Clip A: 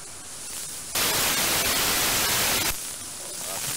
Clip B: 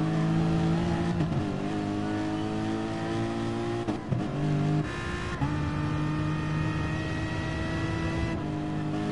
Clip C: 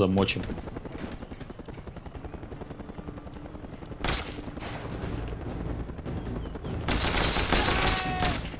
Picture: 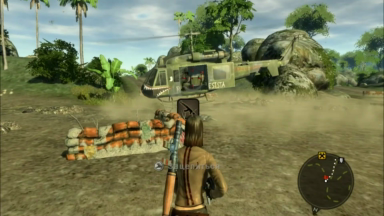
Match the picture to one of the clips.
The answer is C